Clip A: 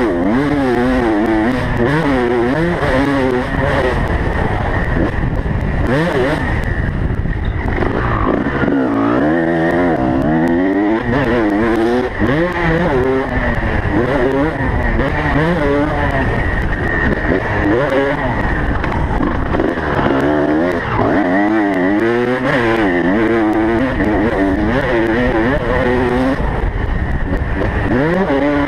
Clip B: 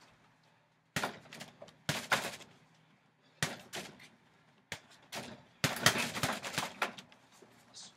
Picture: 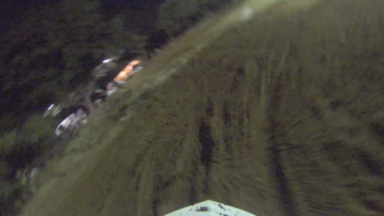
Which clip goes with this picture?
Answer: A